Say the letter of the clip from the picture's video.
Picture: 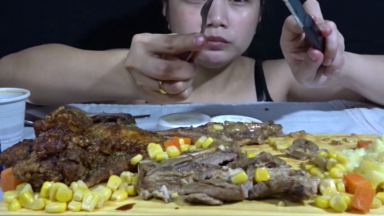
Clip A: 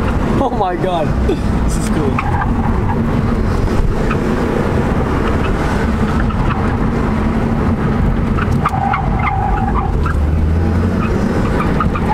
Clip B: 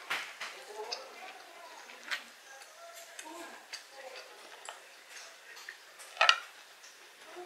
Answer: B